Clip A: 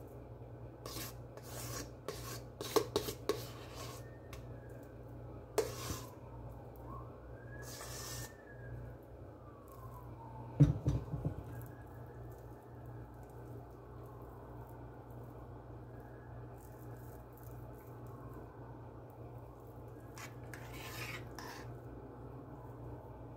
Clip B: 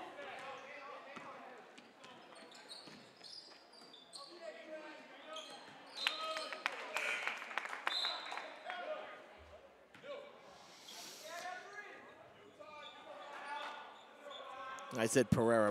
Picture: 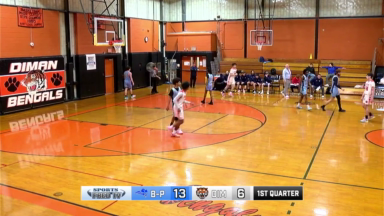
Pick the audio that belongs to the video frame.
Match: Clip B